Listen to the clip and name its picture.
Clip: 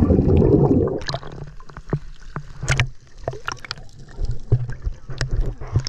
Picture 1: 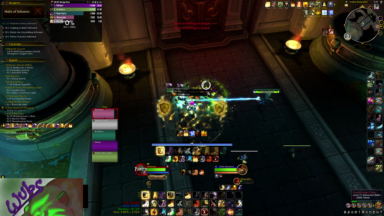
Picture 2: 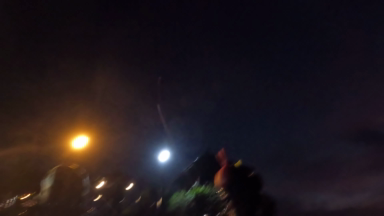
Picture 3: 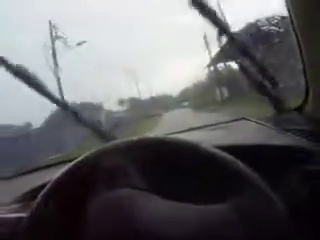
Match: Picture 2